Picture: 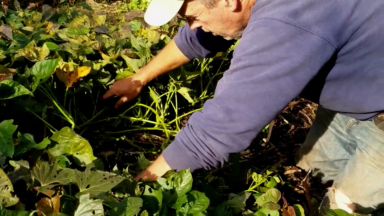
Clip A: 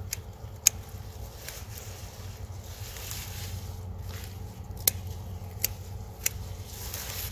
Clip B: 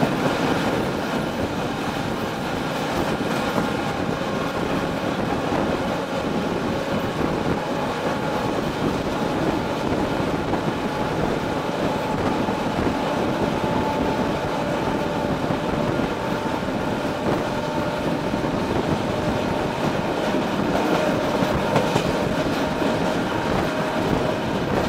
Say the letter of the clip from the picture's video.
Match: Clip A